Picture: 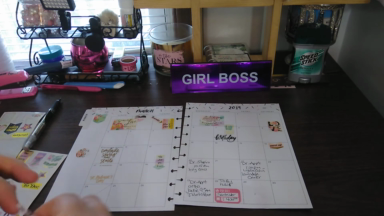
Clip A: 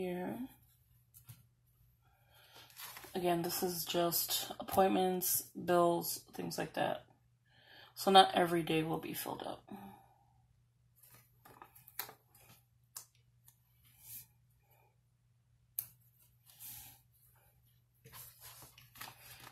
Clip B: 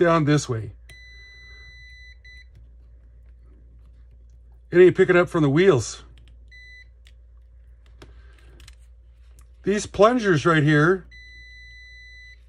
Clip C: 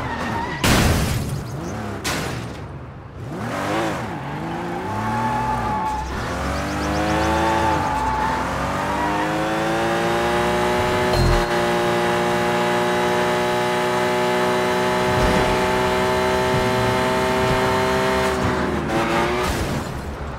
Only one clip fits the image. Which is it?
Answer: A